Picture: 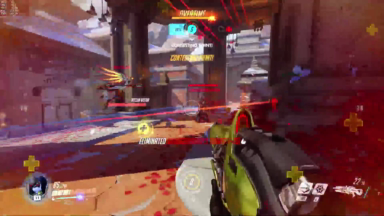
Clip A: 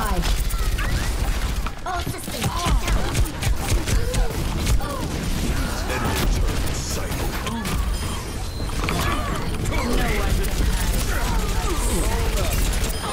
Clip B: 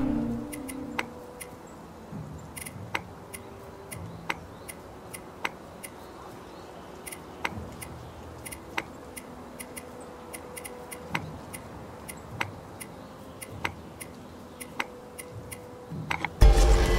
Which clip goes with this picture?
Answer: A